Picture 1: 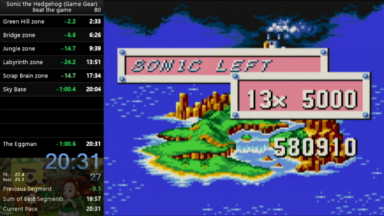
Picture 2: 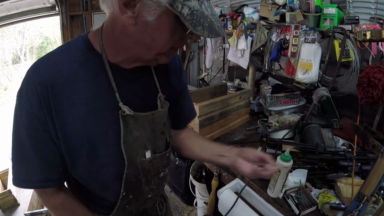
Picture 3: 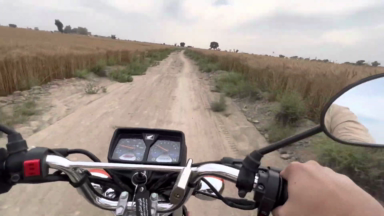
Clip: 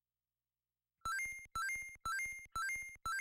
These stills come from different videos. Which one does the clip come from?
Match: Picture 1